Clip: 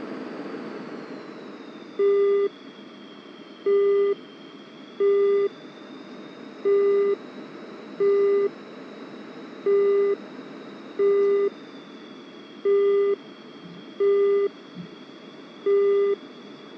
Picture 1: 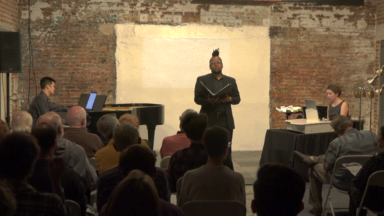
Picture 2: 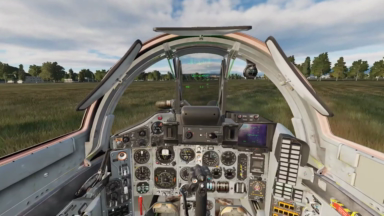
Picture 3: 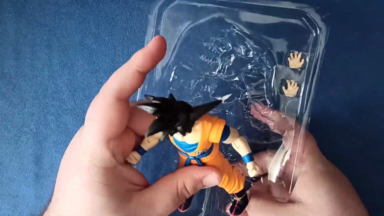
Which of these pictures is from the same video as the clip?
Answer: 2